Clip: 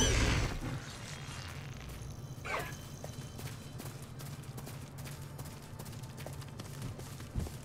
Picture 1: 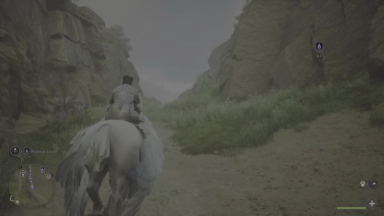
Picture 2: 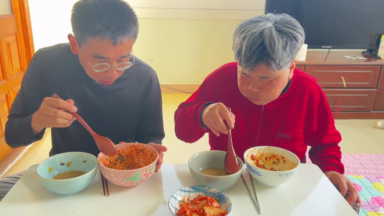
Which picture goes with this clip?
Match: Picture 1